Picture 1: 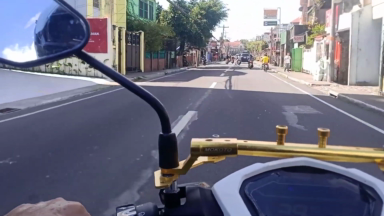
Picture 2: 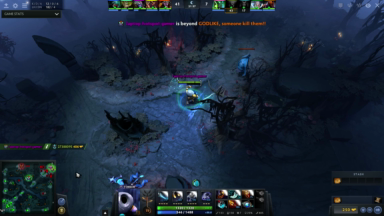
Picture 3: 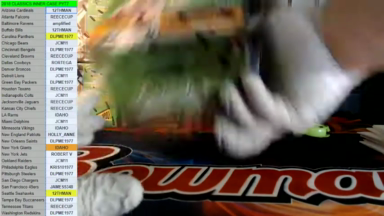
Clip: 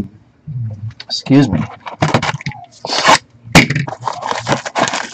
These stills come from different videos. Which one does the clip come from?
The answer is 3